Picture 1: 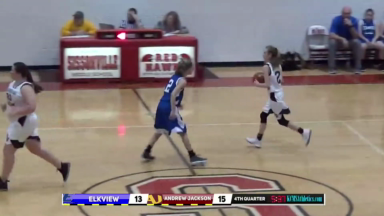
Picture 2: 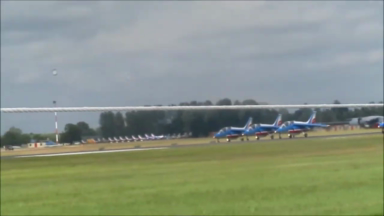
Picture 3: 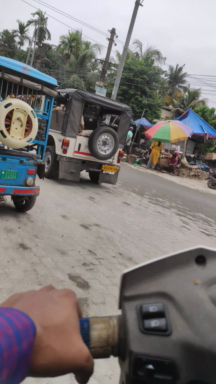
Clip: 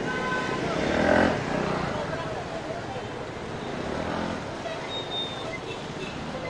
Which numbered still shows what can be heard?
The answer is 3